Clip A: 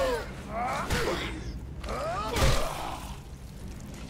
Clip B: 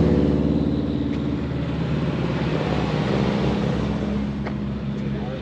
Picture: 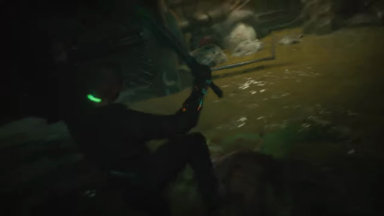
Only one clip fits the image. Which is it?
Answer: A